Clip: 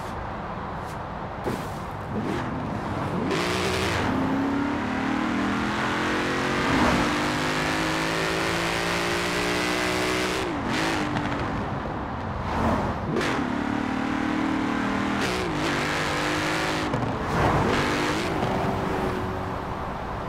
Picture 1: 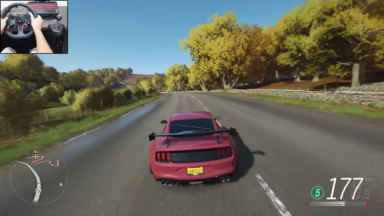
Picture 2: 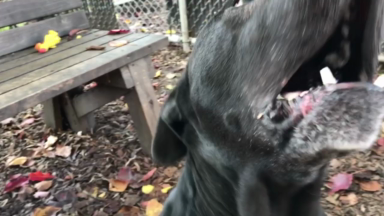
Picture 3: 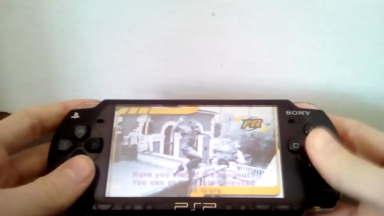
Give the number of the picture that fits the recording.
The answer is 1